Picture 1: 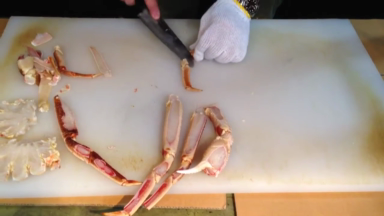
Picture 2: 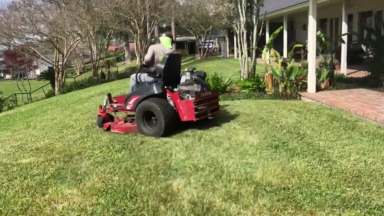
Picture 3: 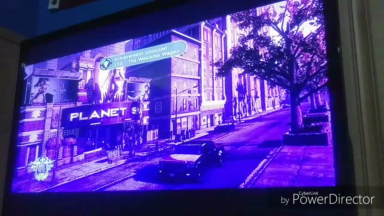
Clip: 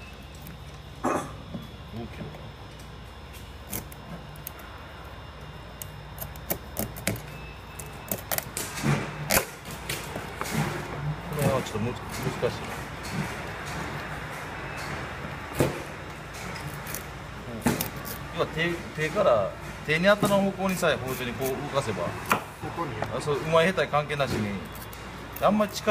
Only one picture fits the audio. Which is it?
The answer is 1